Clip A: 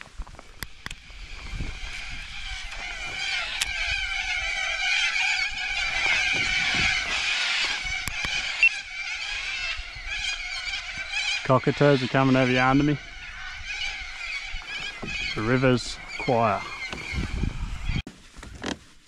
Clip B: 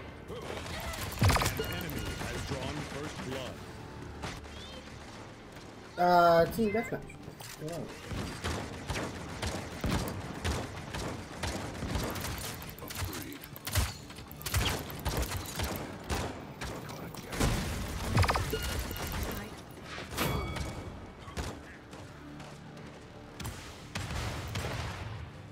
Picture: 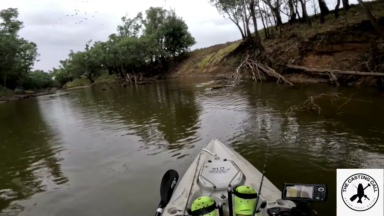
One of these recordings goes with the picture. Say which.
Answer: A